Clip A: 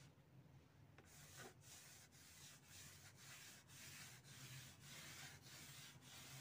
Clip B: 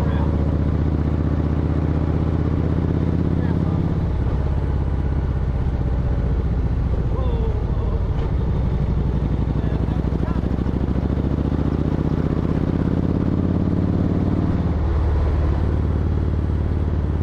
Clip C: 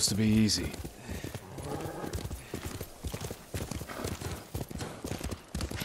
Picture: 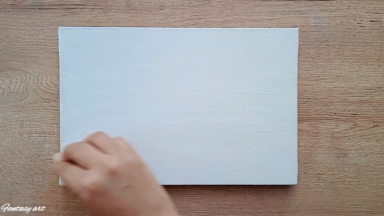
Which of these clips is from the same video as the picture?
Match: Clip A